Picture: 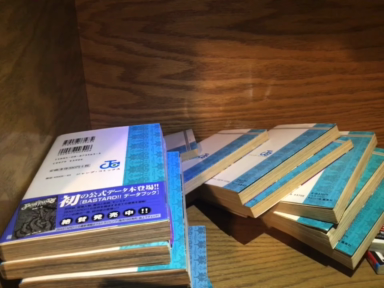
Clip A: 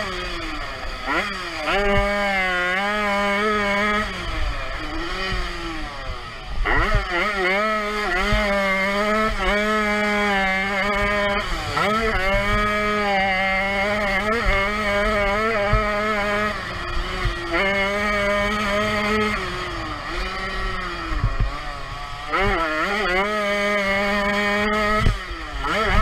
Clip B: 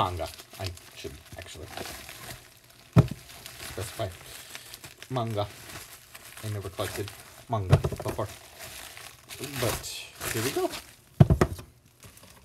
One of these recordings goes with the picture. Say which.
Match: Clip B